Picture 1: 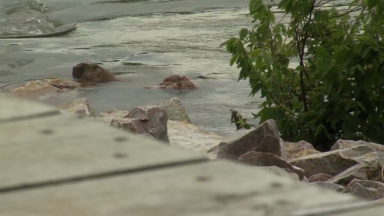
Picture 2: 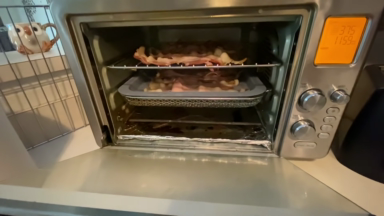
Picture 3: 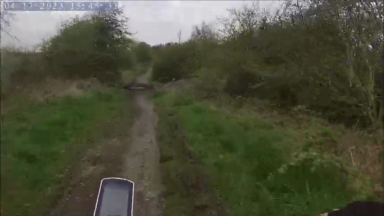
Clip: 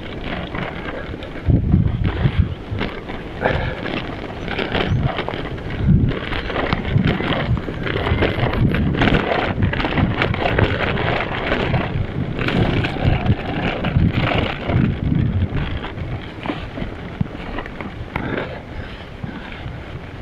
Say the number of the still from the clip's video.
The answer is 3